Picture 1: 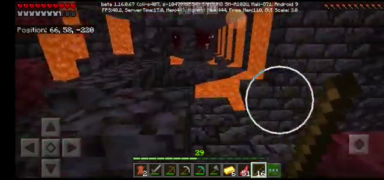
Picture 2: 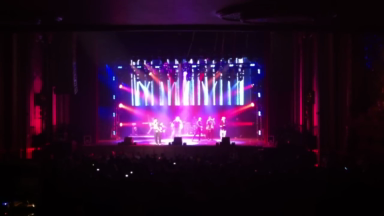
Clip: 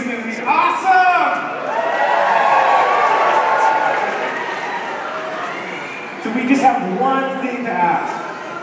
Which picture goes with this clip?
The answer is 2